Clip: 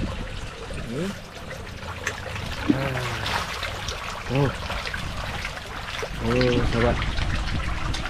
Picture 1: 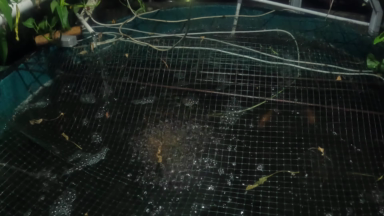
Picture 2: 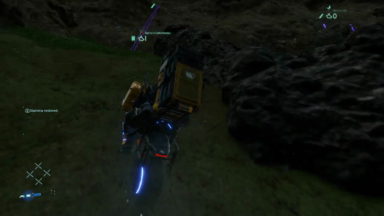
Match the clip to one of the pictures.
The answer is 1